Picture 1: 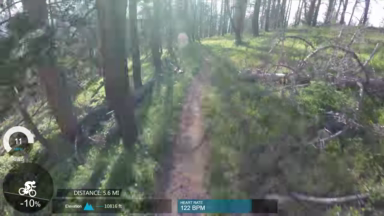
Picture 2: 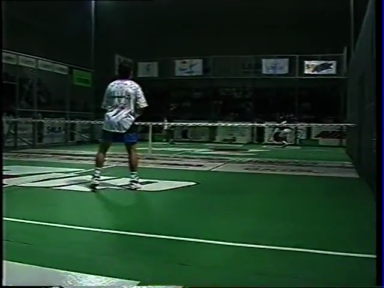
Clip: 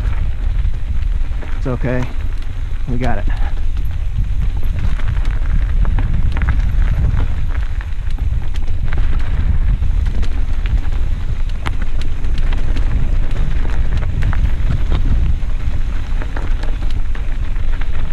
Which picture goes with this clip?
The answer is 1